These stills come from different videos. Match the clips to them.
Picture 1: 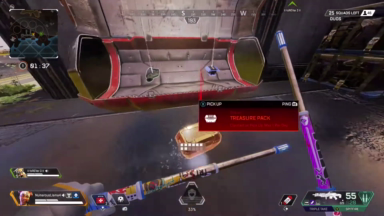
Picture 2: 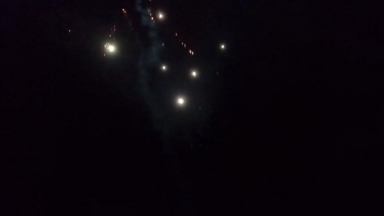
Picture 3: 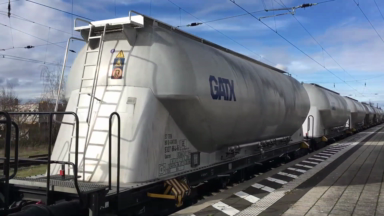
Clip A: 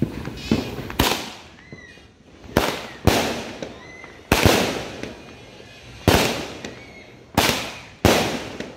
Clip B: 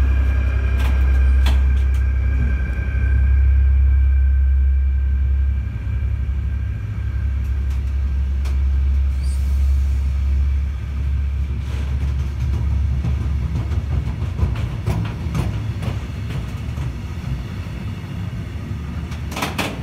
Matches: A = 2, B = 3